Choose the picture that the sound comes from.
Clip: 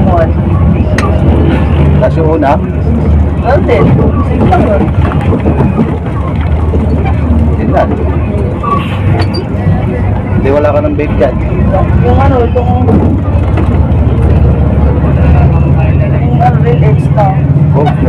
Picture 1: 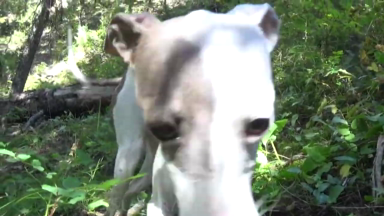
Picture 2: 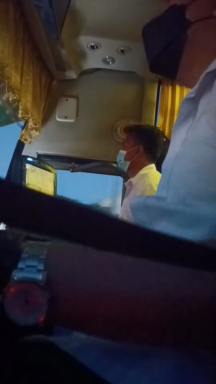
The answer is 2